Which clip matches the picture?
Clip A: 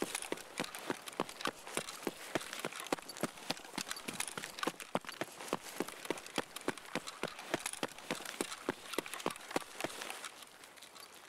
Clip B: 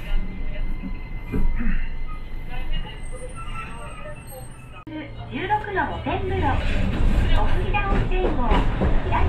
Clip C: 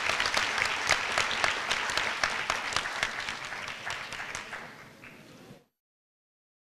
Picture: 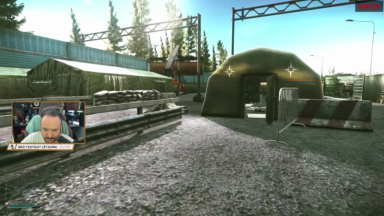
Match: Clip A